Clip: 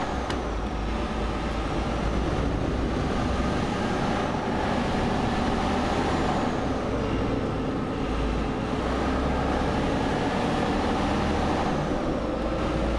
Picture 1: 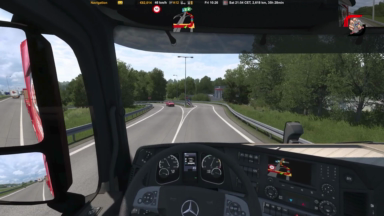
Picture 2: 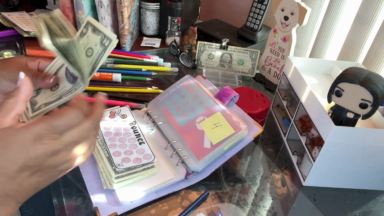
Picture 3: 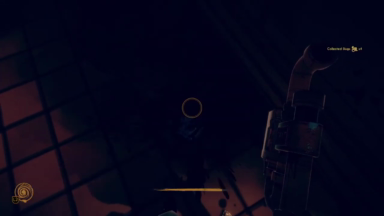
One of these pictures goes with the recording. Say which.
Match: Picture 1